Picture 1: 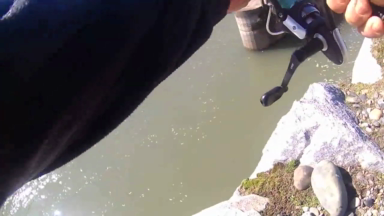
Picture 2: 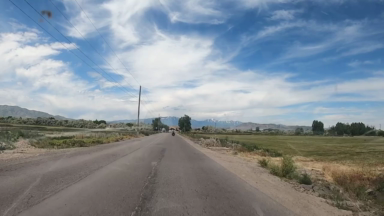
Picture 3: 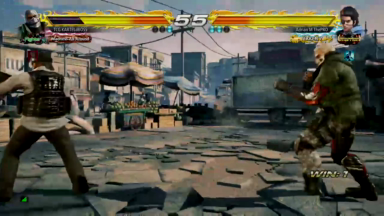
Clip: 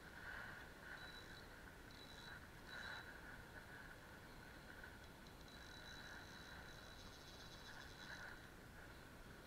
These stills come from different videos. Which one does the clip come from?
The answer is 1